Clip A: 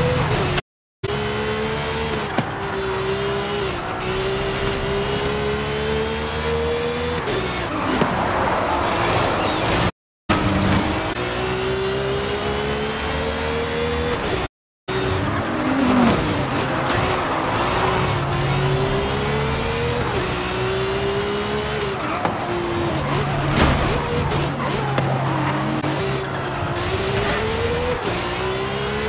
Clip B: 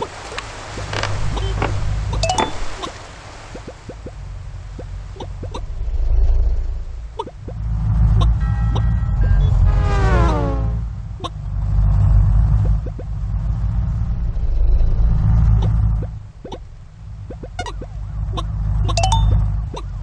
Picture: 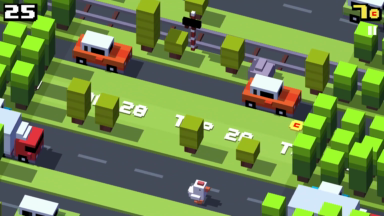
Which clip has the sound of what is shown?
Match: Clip B